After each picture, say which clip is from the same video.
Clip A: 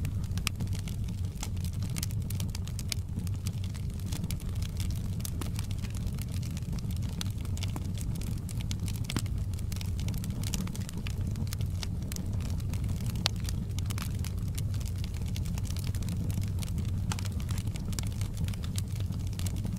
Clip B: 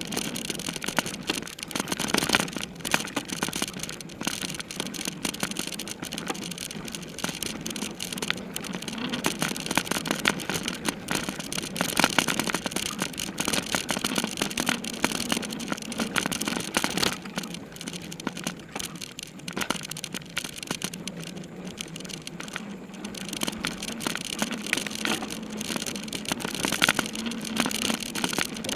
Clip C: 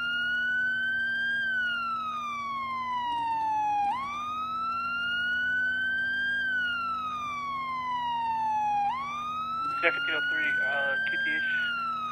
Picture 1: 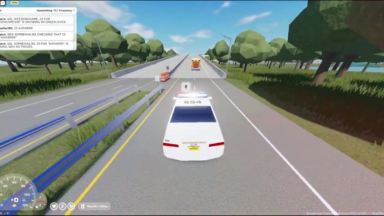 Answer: C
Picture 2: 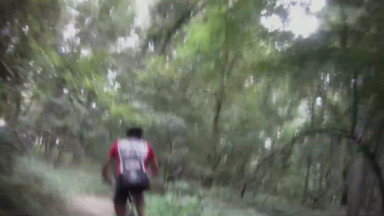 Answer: B